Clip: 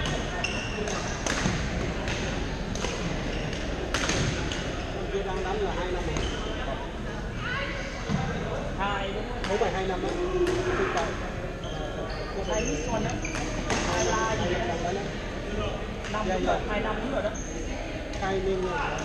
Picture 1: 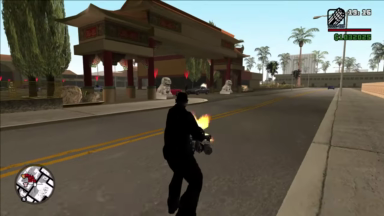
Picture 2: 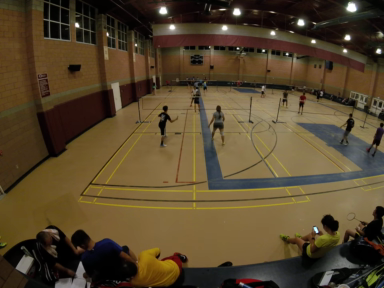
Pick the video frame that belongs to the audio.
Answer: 2